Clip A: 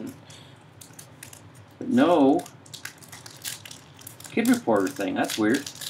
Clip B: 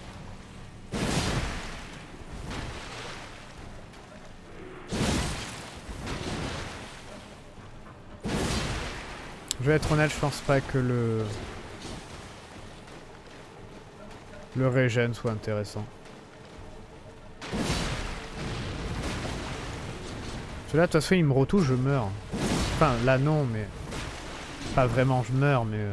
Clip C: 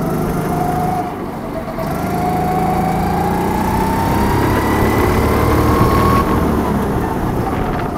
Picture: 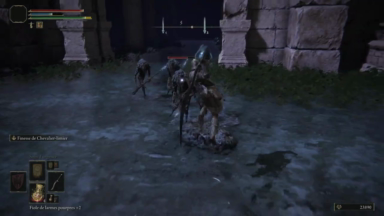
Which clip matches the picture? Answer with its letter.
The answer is B